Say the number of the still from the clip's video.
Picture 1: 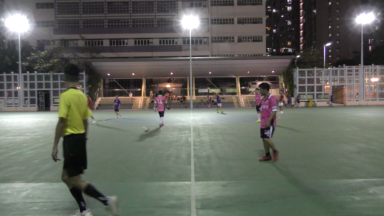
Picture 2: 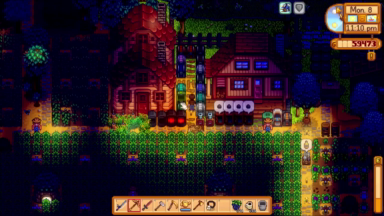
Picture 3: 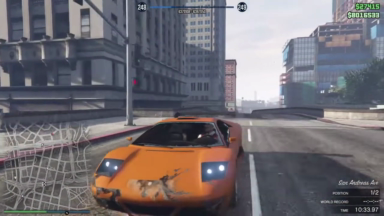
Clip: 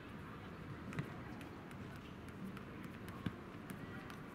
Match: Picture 1